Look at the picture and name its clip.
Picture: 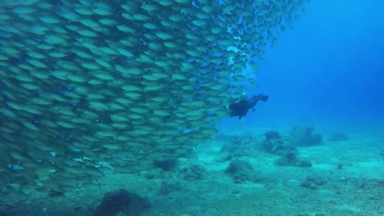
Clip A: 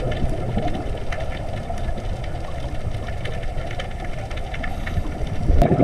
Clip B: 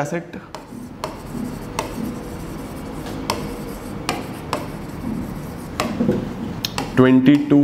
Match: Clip A